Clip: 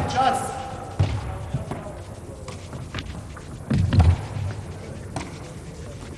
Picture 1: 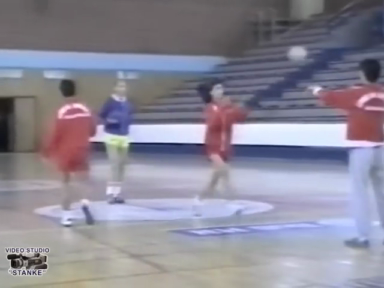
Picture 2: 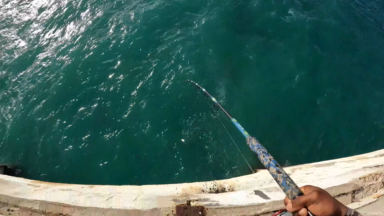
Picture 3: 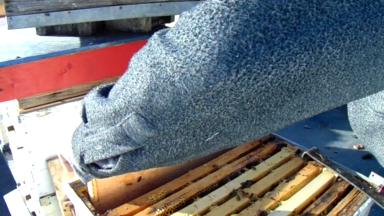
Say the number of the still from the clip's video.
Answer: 1